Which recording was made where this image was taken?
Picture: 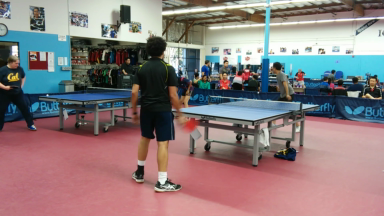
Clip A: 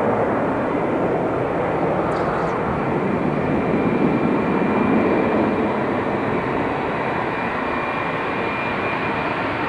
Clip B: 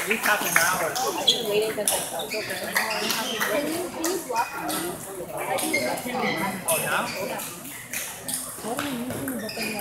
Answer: B